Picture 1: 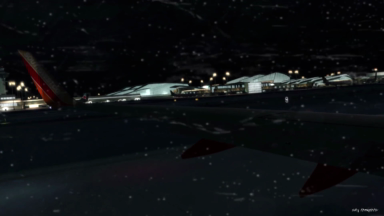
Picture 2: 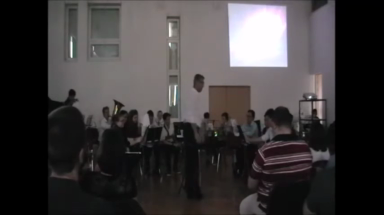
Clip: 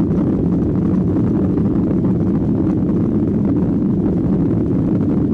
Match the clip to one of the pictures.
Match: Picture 1